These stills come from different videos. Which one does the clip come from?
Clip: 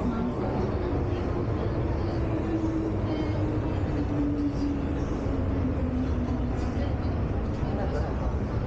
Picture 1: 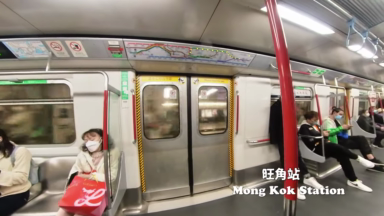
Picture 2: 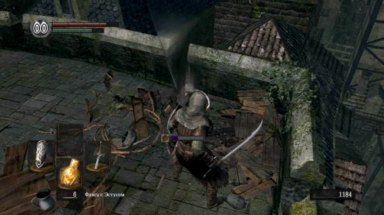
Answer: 1